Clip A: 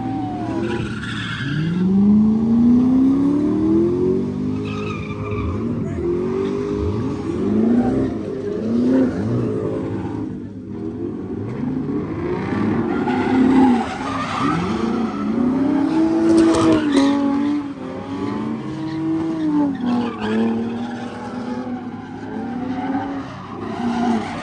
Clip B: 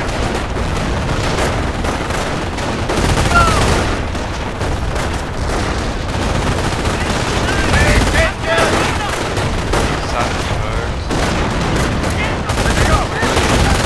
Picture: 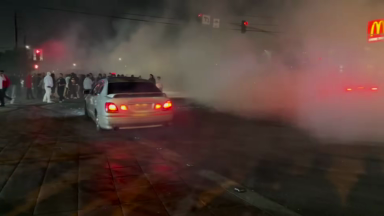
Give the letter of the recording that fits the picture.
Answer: A